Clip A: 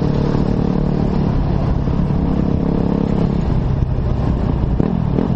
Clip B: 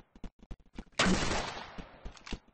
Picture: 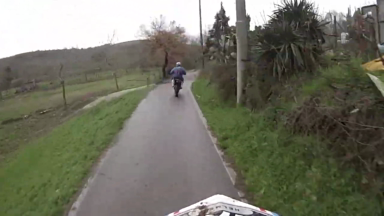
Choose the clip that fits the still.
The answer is A